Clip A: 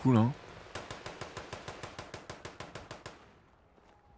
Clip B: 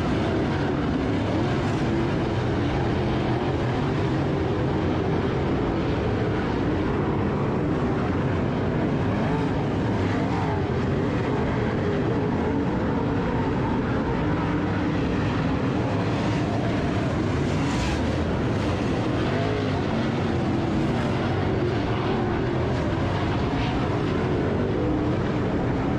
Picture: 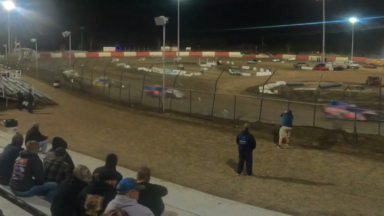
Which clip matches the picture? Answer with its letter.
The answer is B